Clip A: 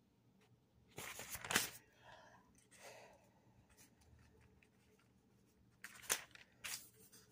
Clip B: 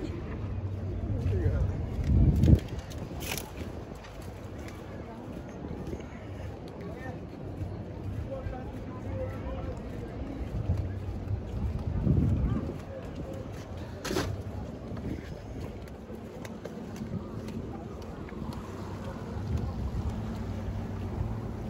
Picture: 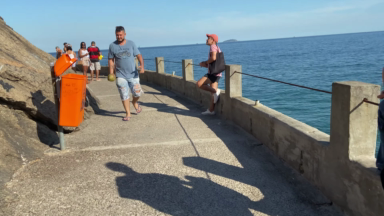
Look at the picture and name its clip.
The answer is B